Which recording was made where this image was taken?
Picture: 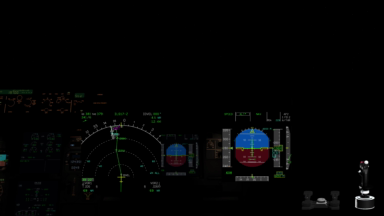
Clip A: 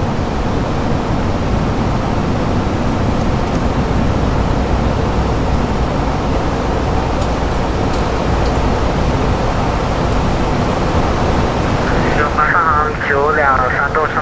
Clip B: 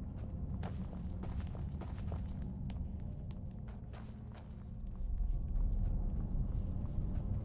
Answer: A